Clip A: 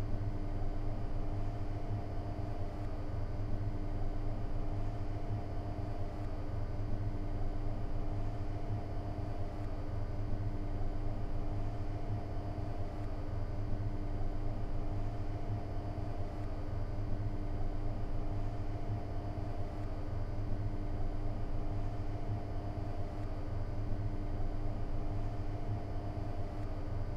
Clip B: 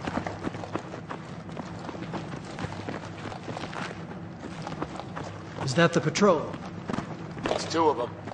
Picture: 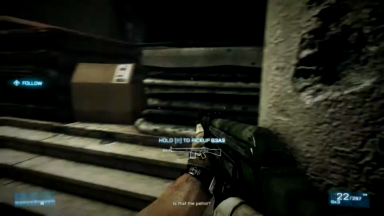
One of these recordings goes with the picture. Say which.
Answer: B